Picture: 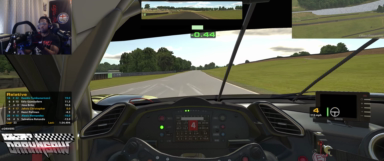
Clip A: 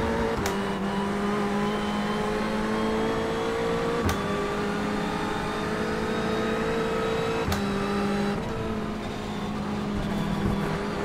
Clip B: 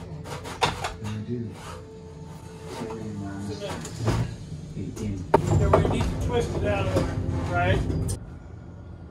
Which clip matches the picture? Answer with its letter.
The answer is A